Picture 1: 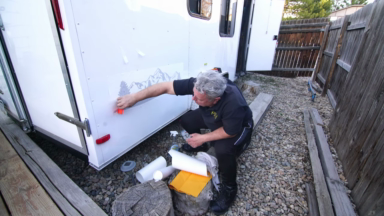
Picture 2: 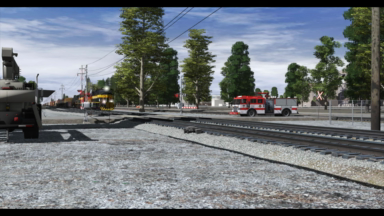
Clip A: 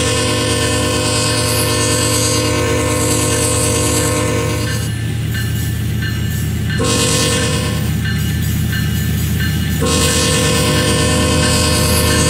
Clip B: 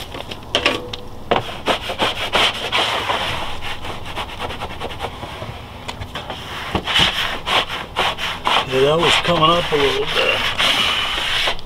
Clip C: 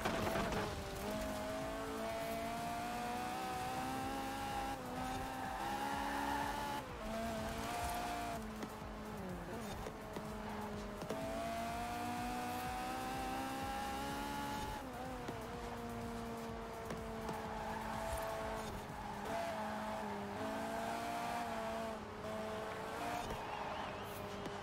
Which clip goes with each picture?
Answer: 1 B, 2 A